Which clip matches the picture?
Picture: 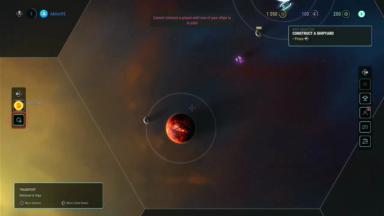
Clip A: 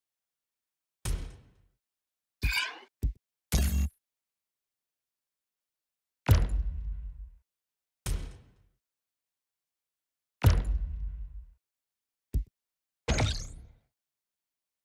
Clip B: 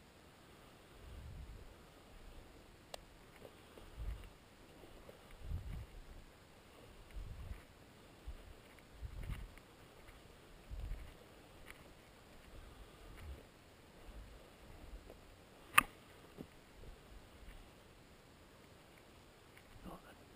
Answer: A